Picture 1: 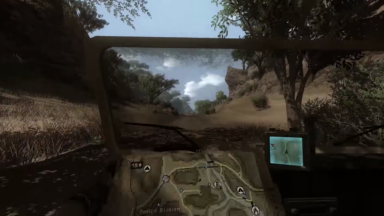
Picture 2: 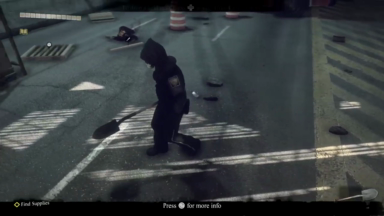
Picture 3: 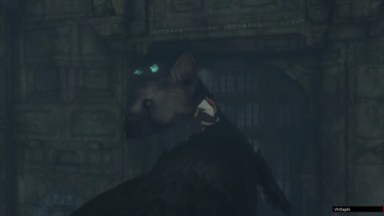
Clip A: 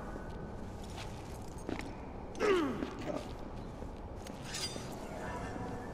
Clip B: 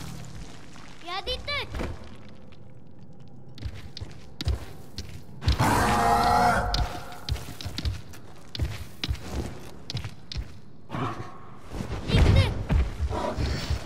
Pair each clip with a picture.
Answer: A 2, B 3